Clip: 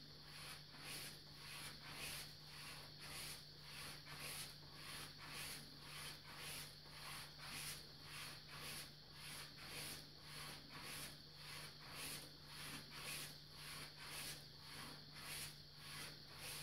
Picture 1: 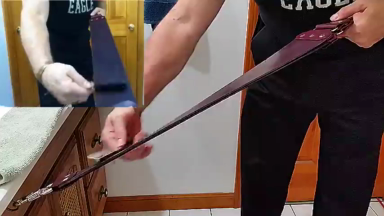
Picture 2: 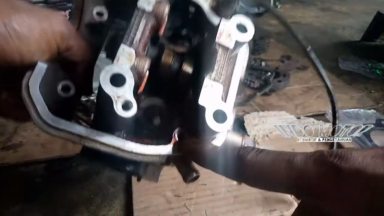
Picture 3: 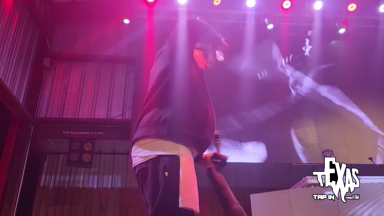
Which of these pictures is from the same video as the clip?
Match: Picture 1